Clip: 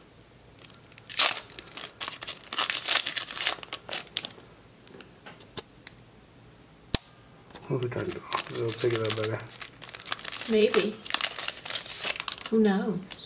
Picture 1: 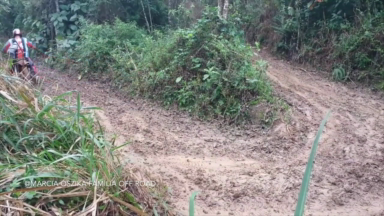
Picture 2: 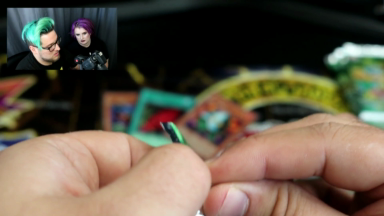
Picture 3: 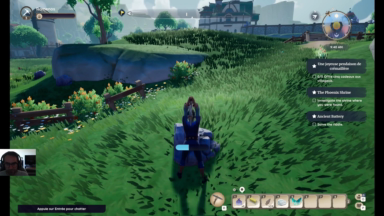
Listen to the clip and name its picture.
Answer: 2